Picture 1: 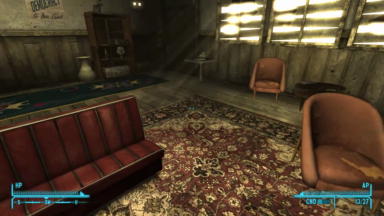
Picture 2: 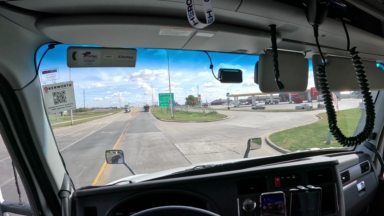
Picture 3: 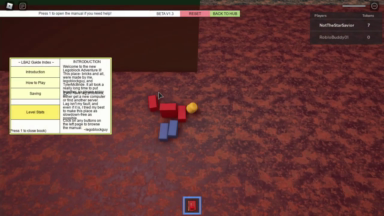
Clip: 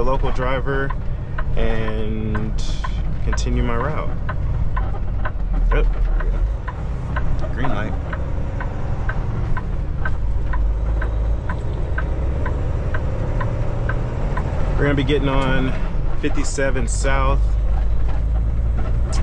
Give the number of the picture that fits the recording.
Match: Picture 2